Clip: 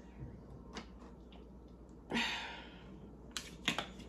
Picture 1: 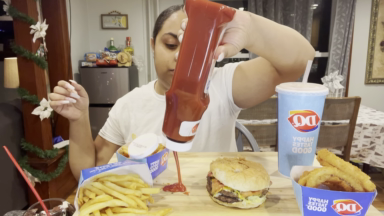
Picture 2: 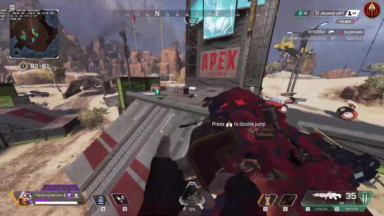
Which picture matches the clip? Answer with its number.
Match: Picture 1